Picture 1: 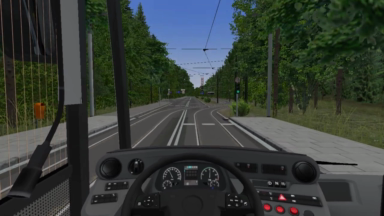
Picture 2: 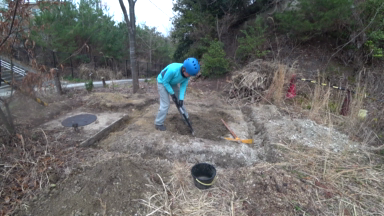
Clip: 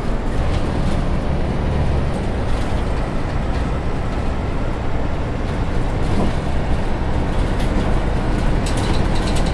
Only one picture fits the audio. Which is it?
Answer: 1